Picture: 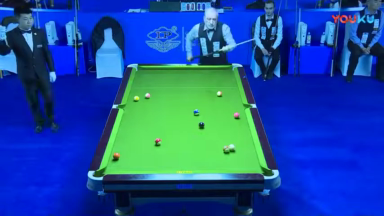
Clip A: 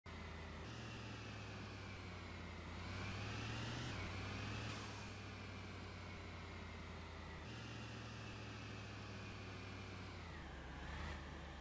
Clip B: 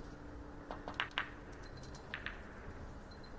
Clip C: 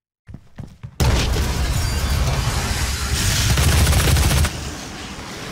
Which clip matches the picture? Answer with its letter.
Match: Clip B